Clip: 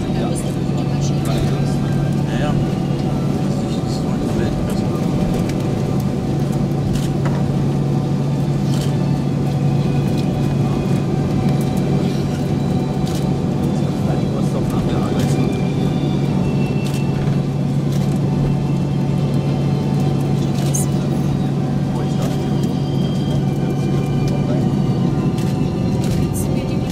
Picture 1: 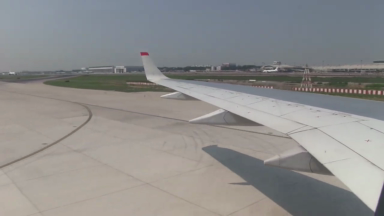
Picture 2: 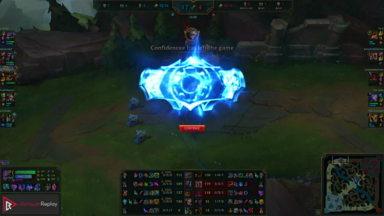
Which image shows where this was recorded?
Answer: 1